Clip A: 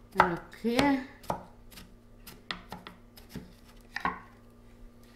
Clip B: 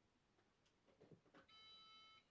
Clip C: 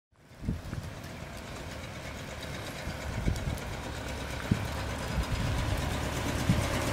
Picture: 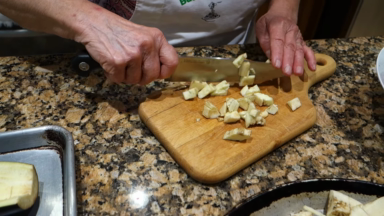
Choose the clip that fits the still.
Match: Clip A